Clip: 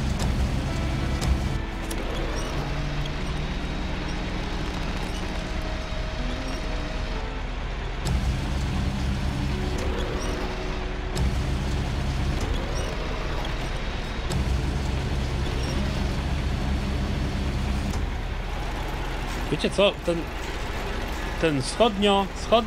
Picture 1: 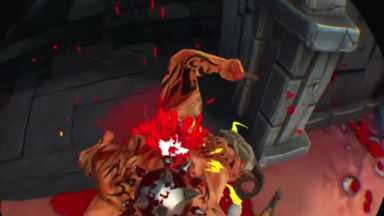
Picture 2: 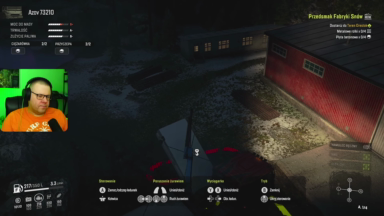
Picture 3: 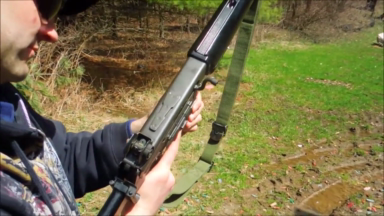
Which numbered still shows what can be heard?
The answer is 2